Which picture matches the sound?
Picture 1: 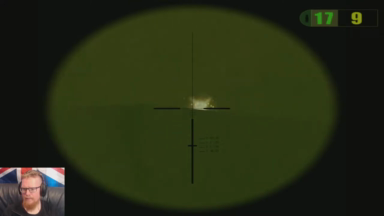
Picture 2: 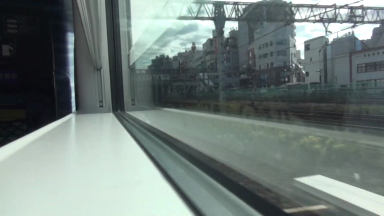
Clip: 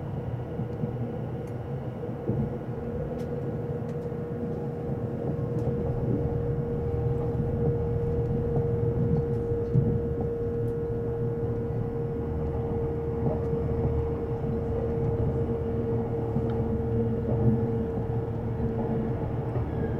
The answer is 2